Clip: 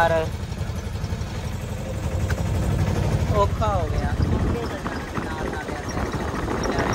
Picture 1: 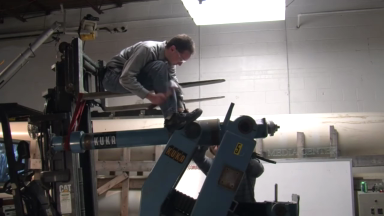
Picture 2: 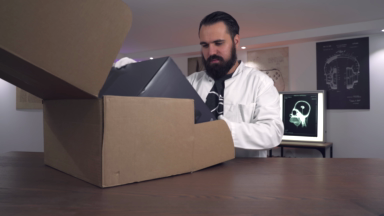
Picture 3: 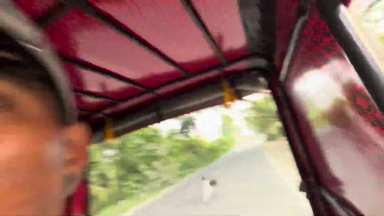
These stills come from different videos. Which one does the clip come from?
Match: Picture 3